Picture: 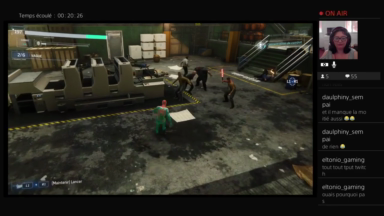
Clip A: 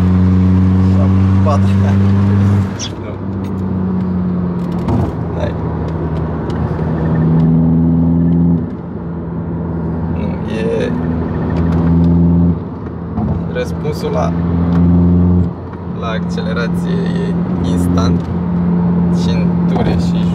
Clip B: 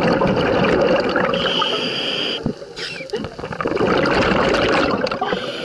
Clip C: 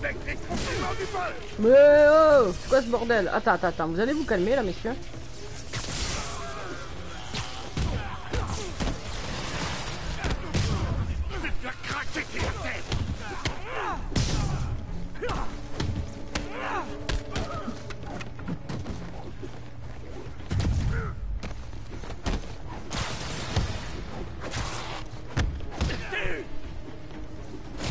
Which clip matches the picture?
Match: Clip C